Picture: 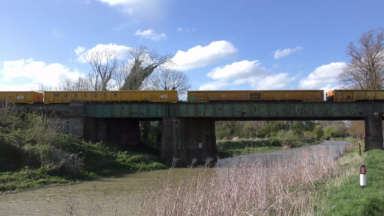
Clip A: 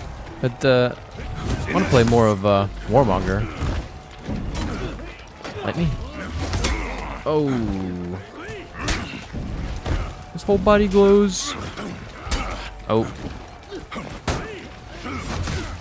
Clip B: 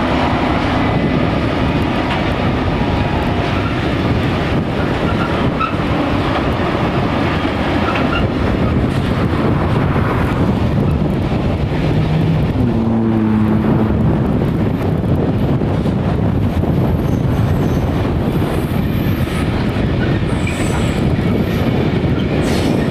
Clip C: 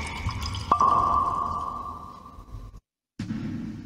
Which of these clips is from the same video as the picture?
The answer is B